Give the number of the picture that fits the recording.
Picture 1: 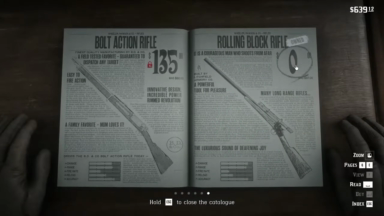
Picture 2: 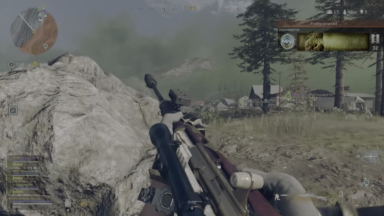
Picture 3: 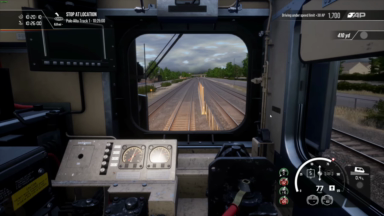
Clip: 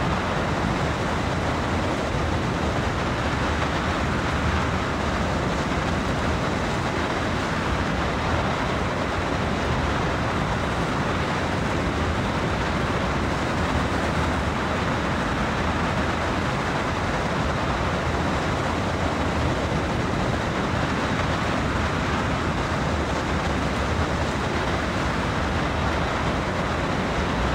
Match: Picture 3